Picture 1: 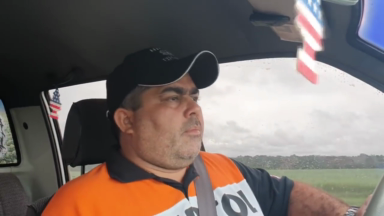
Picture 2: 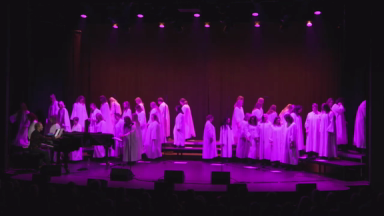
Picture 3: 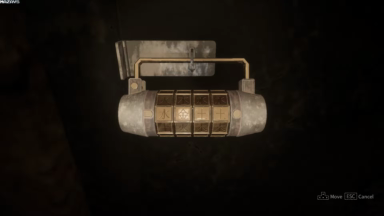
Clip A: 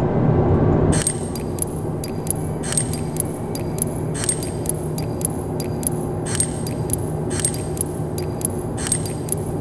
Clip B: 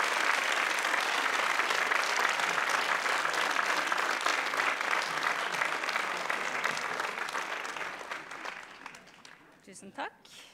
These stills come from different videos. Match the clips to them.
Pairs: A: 3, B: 2